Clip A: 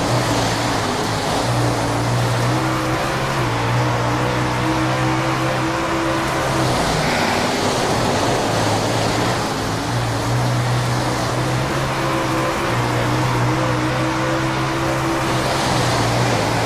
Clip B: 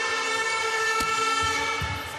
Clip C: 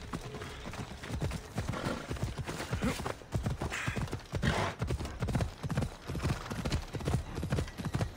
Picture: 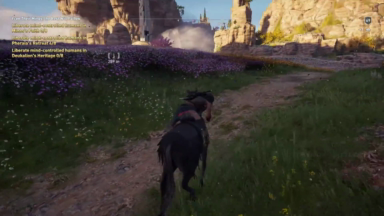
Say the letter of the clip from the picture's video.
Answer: C